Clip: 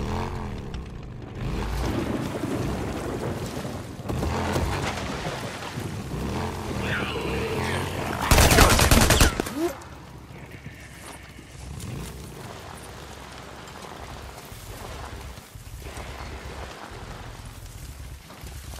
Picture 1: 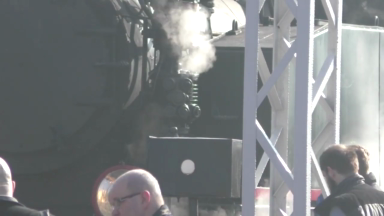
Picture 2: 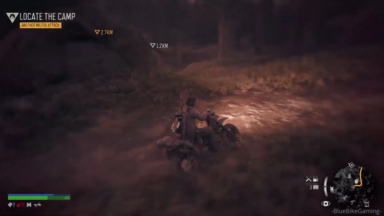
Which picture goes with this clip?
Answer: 2